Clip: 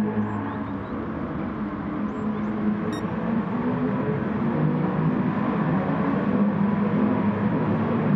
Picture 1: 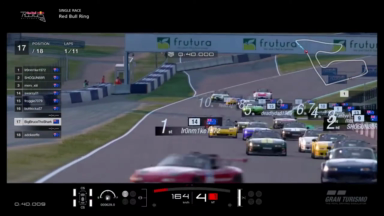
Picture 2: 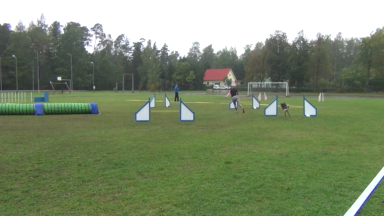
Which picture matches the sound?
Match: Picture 1